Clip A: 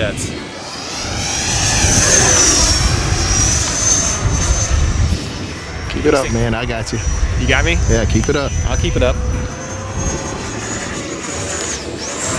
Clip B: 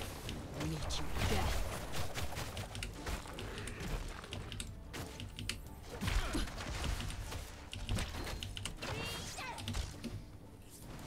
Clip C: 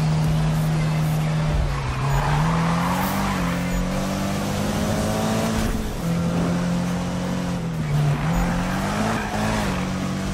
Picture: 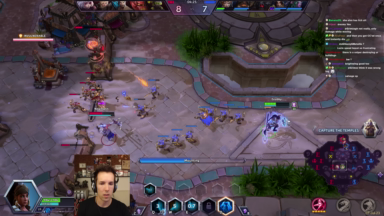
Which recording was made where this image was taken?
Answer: B